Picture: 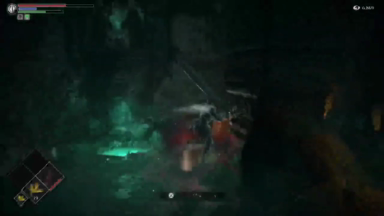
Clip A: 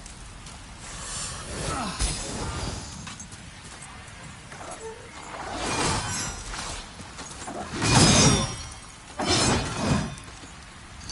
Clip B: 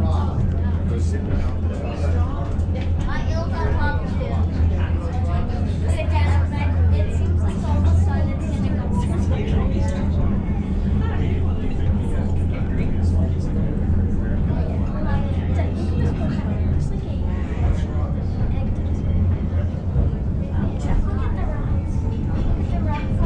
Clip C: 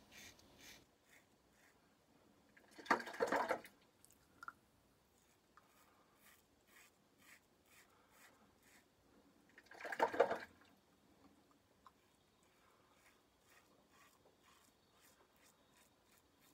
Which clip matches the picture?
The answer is A